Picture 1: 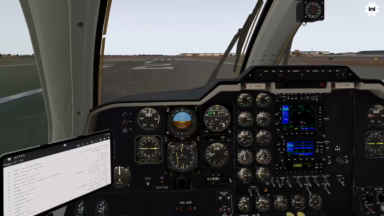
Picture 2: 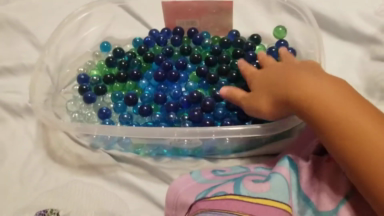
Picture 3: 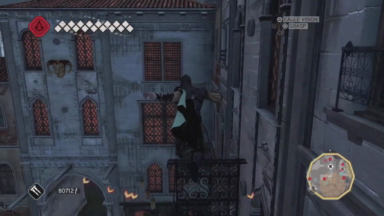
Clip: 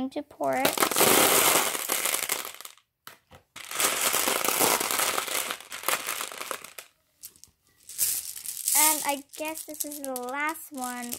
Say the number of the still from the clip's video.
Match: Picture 2